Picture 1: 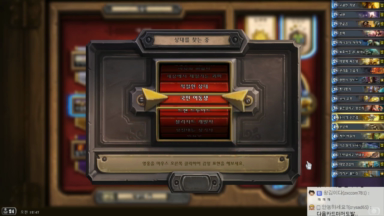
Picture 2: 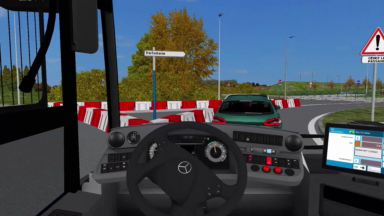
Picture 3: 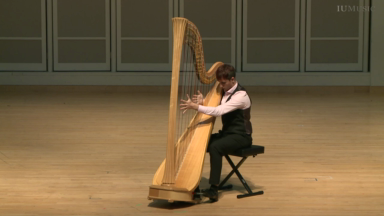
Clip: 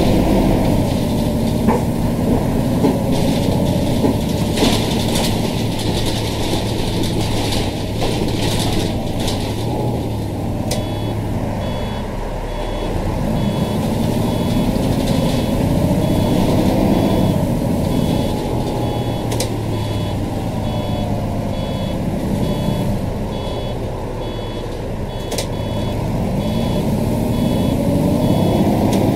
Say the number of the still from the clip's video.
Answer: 2